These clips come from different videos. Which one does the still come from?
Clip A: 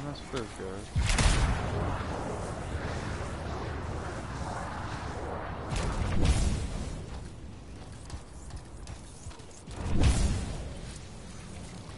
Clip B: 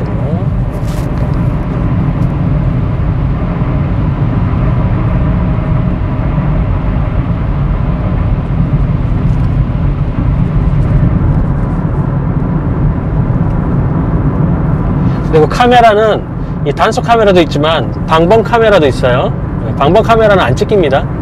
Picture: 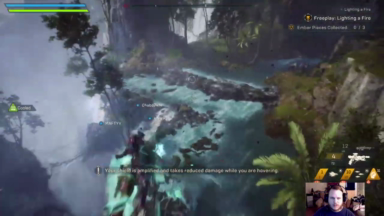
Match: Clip A